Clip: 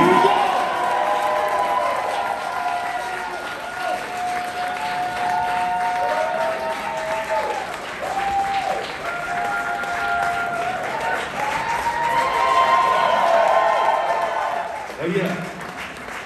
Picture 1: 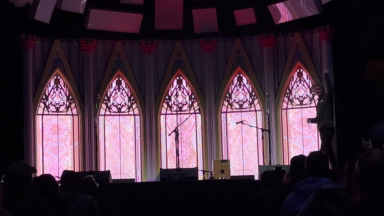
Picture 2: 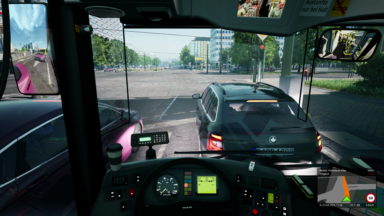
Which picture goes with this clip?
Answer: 1